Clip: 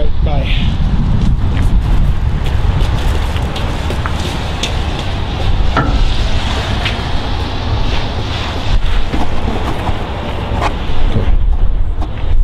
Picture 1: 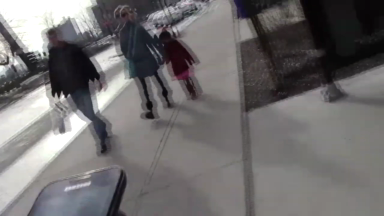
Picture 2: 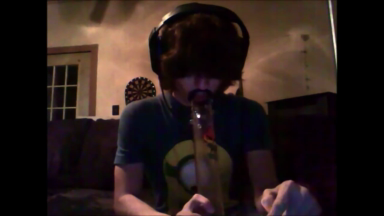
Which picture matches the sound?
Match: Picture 1